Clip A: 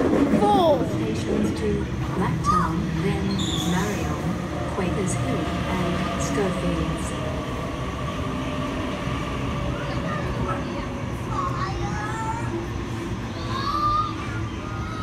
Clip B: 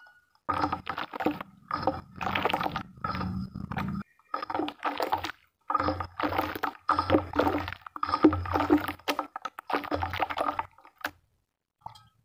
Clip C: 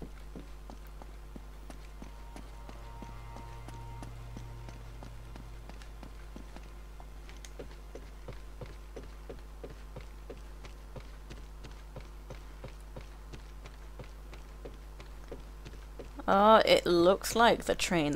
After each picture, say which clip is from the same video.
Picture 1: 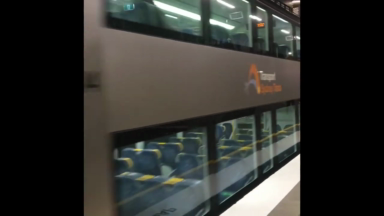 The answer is A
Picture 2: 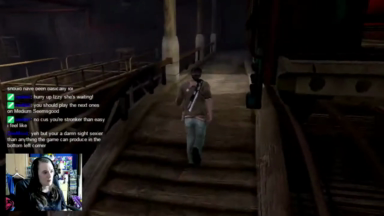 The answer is C